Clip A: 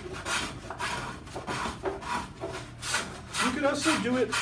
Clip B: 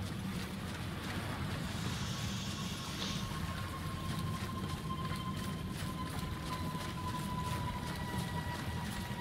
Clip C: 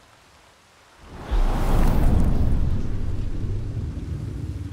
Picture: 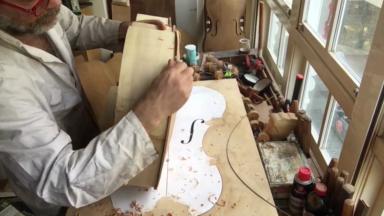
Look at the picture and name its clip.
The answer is A